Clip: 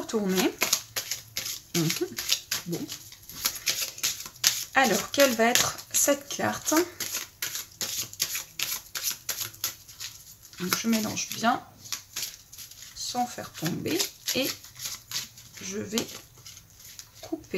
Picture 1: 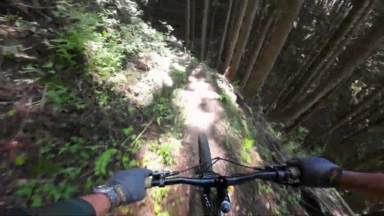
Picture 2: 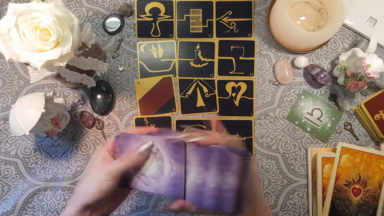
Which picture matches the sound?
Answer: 2